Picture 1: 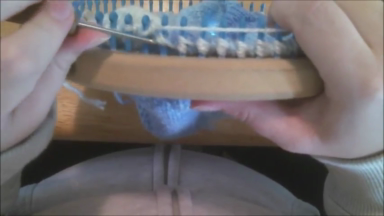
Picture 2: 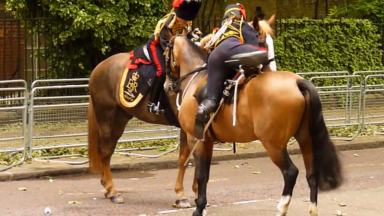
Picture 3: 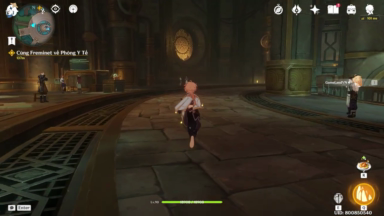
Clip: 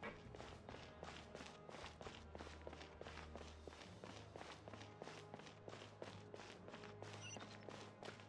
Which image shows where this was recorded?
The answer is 3